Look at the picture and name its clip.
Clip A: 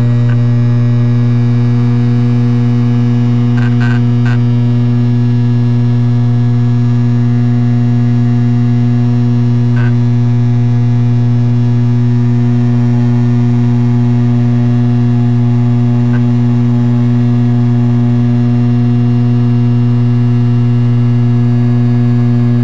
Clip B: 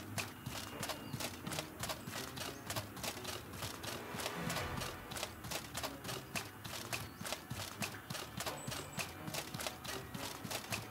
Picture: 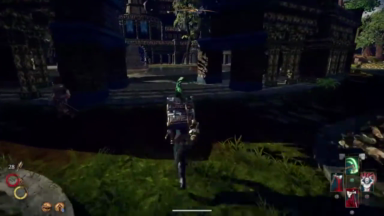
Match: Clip B